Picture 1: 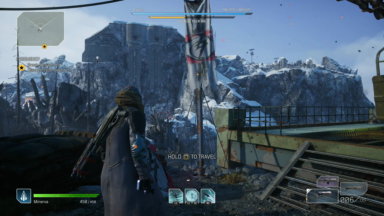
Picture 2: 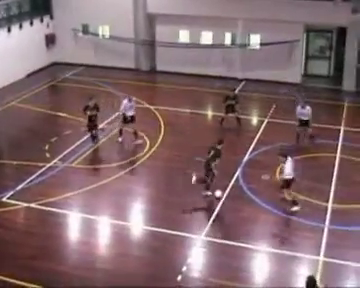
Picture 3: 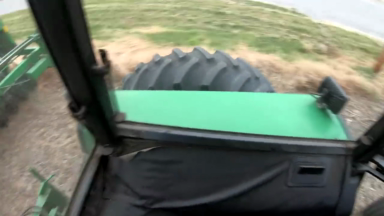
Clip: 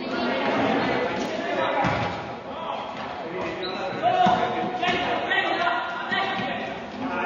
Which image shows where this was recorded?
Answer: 2